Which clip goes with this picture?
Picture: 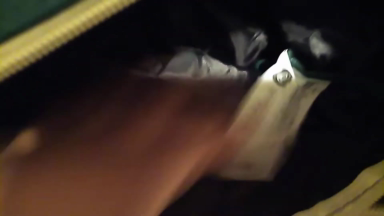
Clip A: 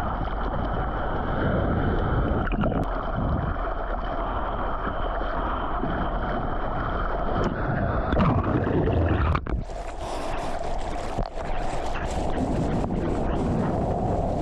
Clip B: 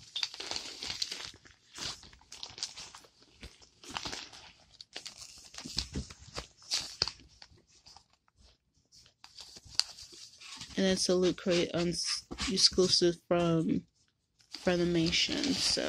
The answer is B